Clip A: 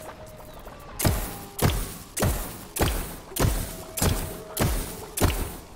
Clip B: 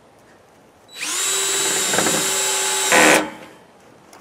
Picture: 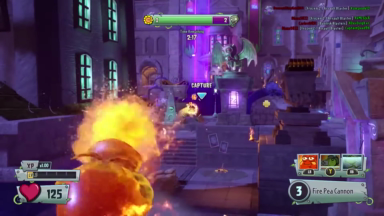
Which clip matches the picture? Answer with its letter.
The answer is A